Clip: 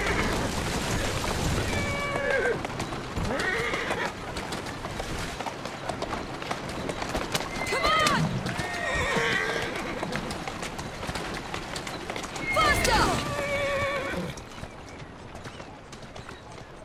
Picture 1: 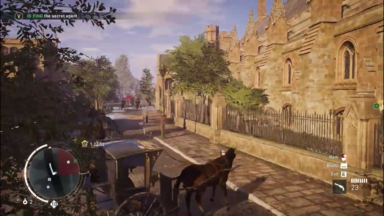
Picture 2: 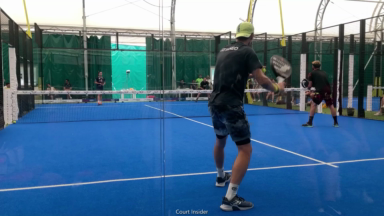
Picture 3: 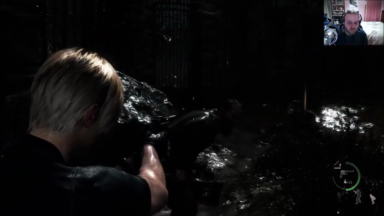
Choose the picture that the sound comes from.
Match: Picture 1